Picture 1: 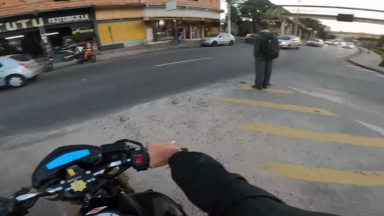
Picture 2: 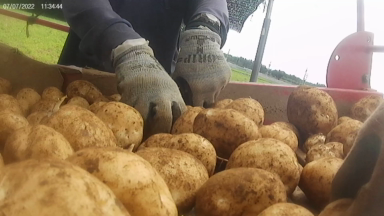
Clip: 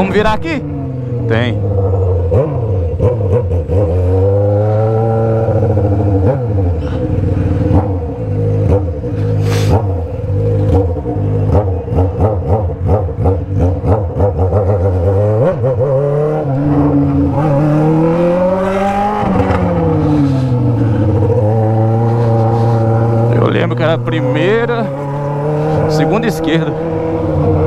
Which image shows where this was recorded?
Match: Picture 1